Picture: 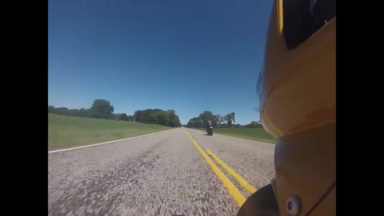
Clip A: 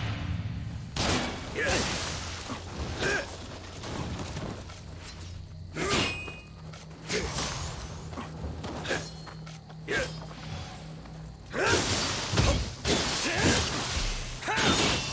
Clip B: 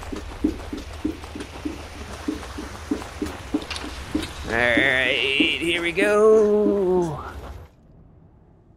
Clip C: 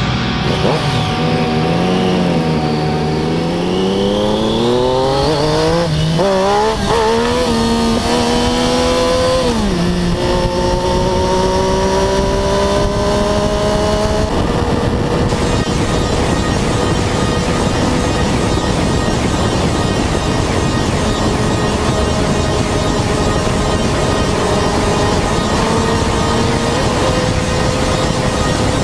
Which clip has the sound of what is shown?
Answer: C